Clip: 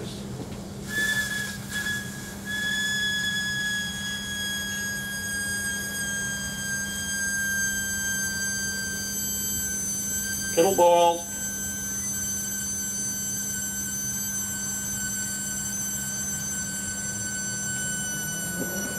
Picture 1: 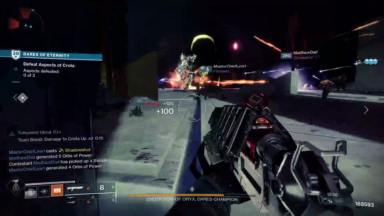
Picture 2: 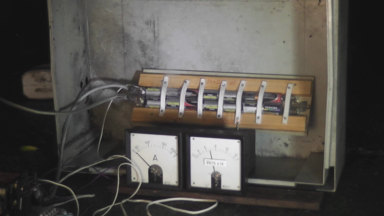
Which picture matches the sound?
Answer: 2